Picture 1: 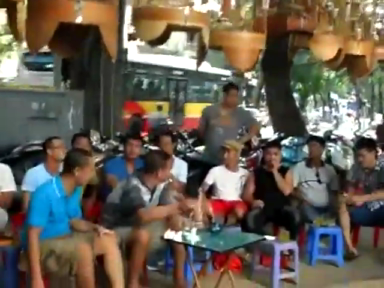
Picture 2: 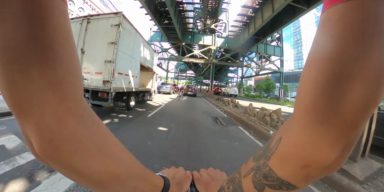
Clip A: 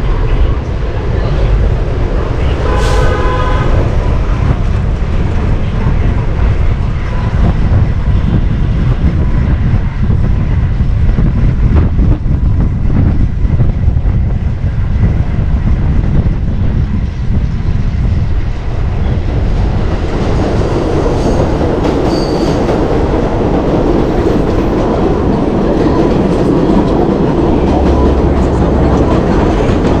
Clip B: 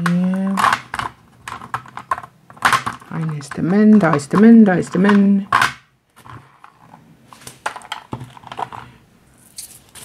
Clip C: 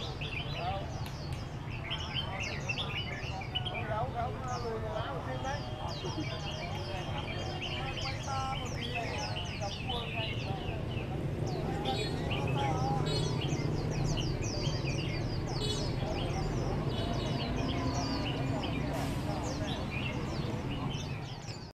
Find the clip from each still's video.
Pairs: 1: C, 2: A